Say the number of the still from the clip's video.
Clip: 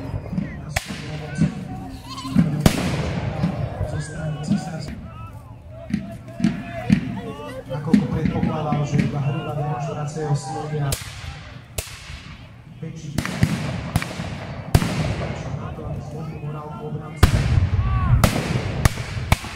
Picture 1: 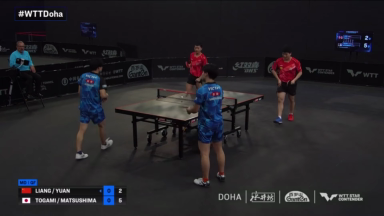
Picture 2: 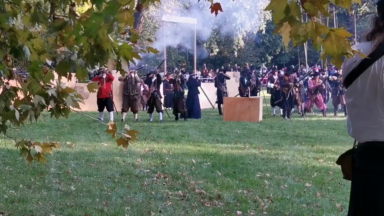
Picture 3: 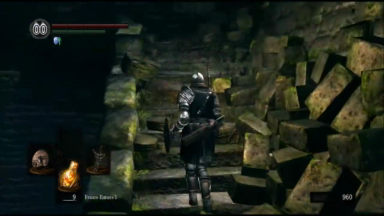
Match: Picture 2